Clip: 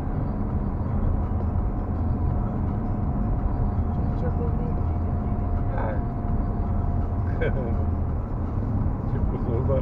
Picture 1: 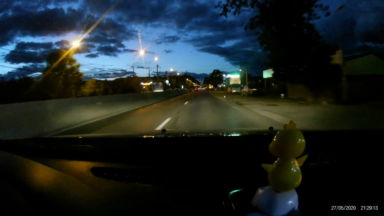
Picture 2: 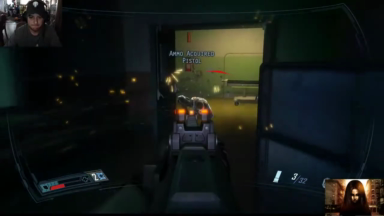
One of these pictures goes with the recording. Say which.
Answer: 1